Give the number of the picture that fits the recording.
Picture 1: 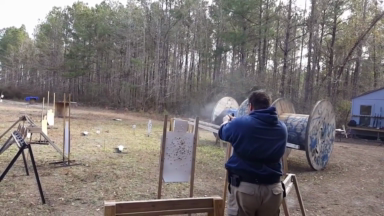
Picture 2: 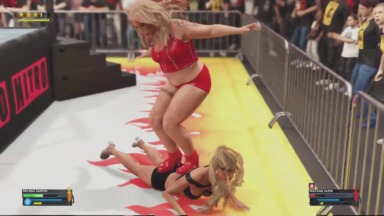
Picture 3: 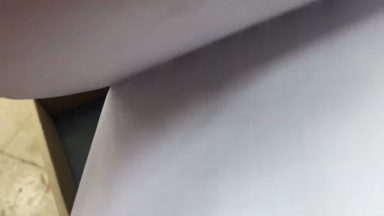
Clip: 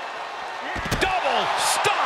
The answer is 2